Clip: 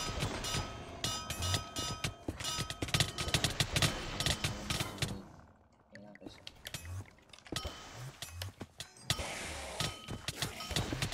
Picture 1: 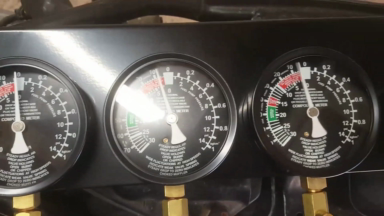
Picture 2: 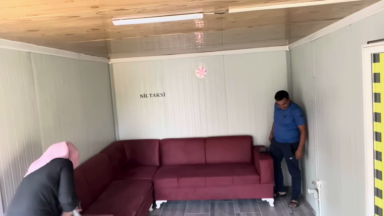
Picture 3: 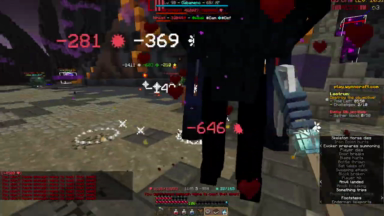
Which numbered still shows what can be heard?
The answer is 3